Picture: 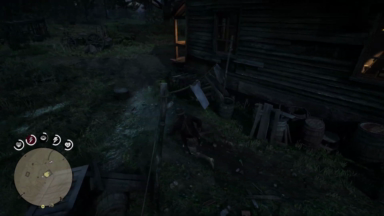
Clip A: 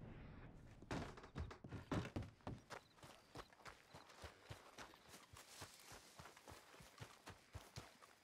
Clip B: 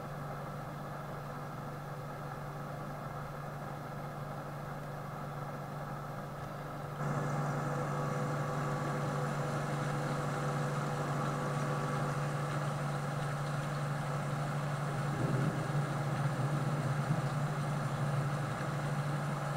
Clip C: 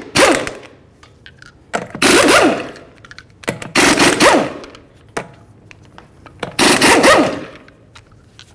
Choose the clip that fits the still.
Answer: A